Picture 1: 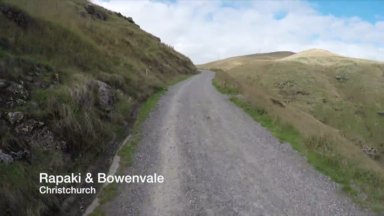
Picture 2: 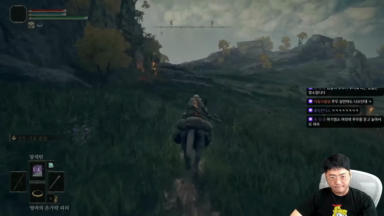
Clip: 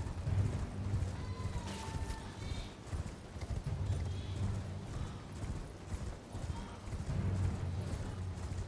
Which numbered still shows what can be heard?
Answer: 2